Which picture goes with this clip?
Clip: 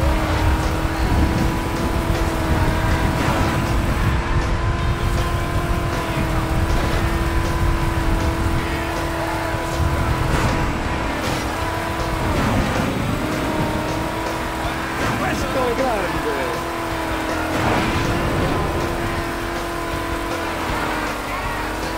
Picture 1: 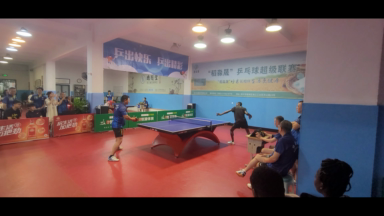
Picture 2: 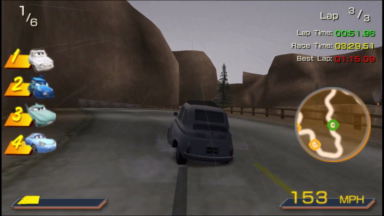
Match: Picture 2